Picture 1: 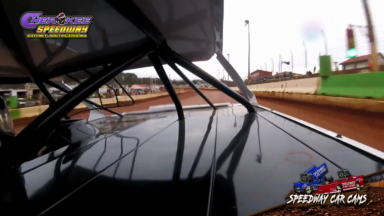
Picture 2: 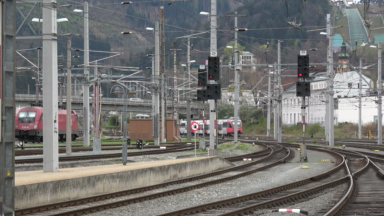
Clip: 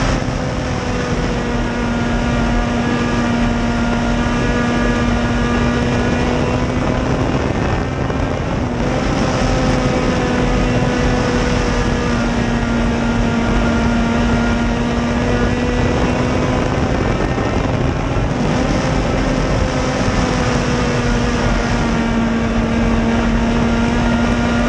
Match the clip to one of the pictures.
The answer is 1